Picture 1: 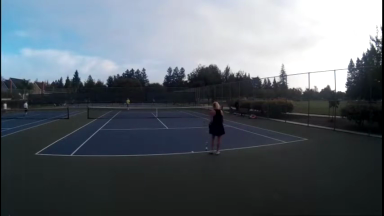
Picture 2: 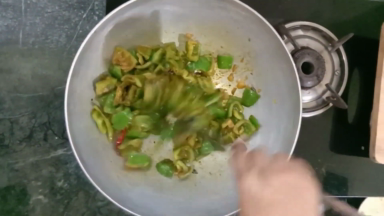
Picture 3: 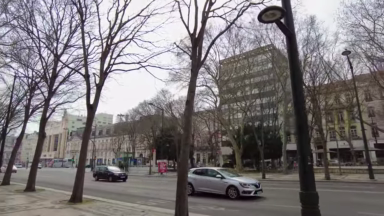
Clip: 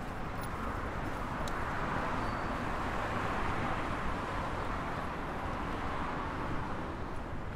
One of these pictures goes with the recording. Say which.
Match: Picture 3